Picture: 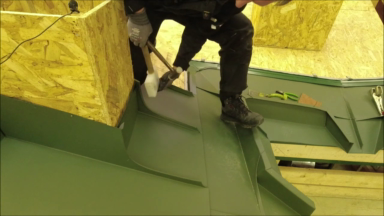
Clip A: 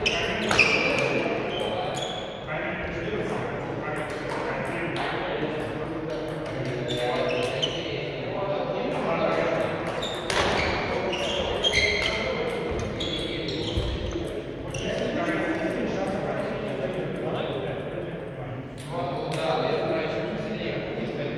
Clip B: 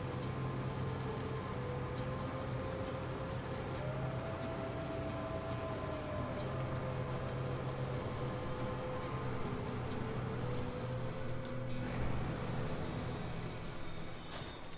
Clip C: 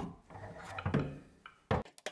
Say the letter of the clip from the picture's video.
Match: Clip C